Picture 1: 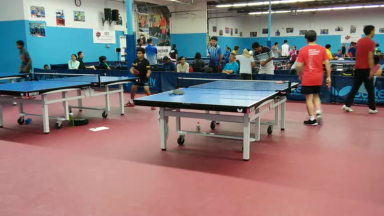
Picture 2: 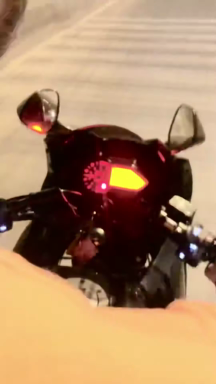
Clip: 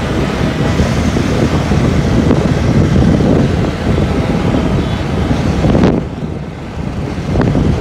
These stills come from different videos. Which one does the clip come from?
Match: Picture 2